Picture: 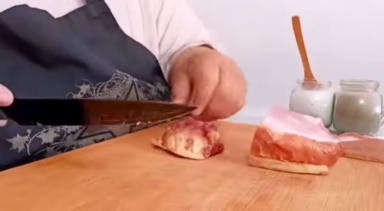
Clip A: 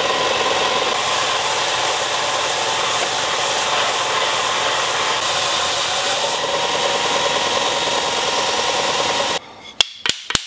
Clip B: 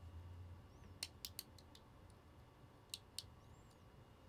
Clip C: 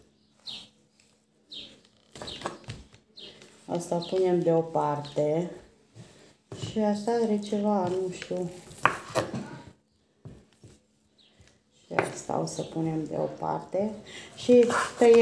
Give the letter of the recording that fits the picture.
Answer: C